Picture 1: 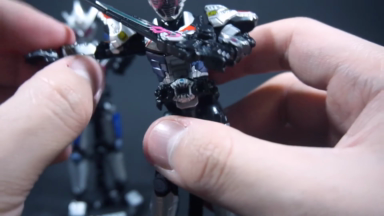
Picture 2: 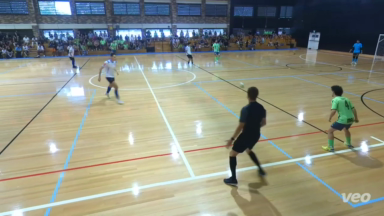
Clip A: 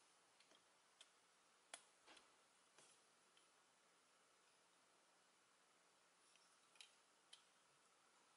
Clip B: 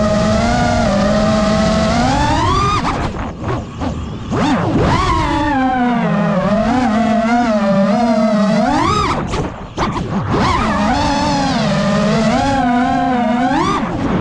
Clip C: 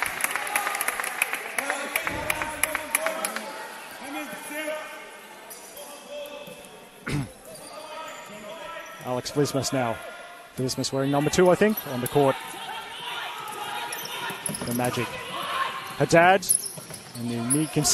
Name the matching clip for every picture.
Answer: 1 A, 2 C